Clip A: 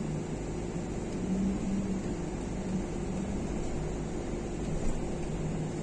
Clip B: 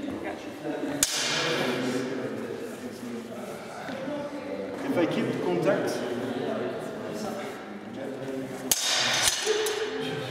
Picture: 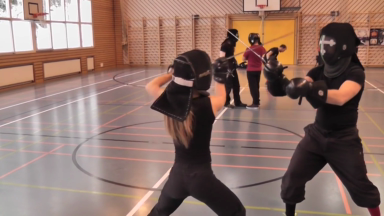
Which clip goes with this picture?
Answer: B